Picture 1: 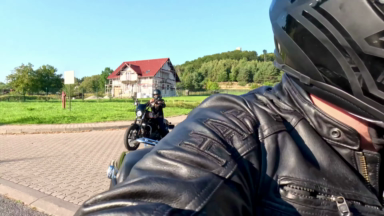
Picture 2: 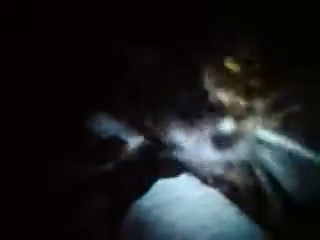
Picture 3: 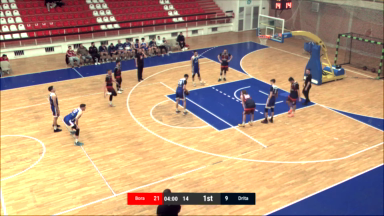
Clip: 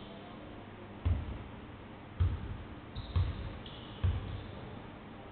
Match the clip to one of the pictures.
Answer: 3